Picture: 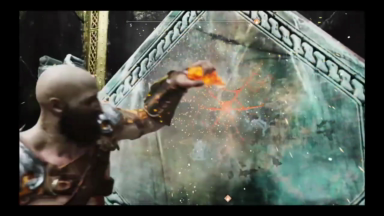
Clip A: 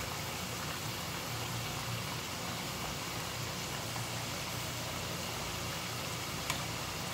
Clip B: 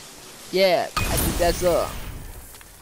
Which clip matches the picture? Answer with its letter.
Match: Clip B